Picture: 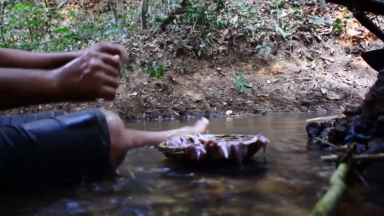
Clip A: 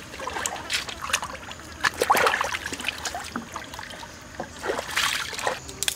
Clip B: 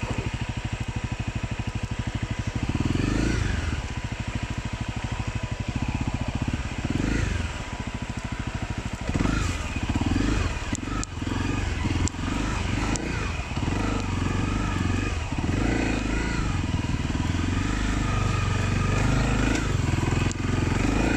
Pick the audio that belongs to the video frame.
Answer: A